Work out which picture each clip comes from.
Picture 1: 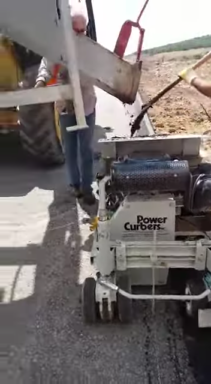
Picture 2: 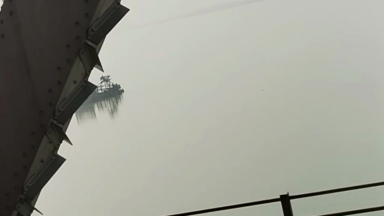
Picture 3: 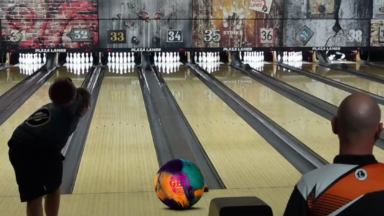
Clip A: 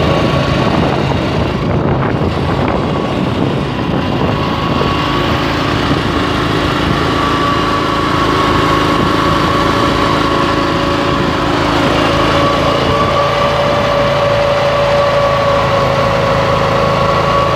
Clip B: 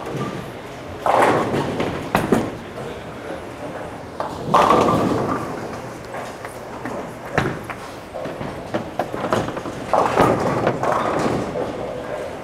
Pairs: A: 1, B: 3